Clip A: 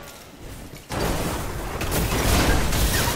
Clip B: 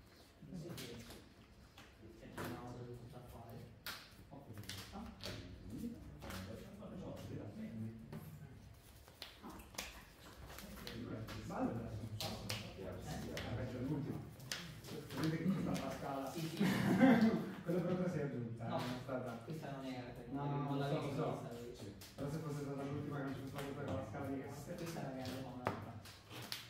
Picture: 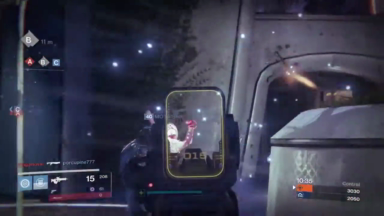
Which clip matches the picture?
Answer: A